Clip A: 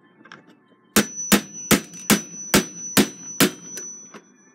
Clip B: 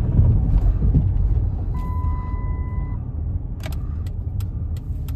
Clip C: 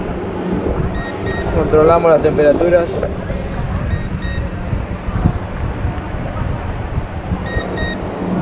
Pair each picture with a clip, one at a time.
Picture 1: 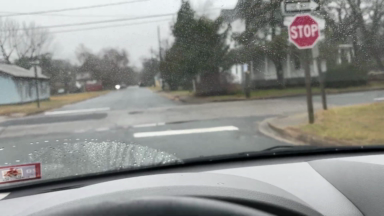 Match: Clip B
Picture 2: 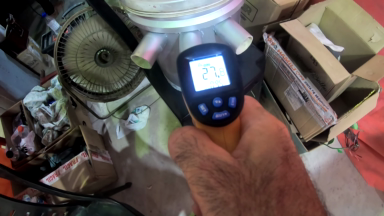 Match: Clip C